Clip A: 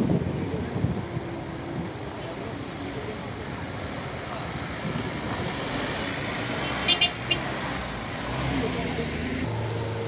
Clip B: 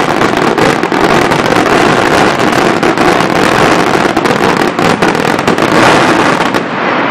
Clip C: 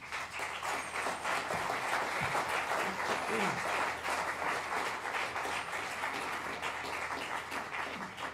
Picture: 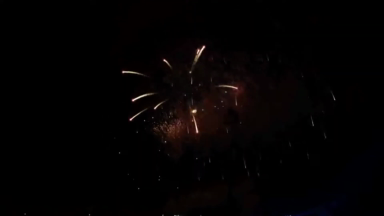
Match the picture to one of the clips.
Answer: B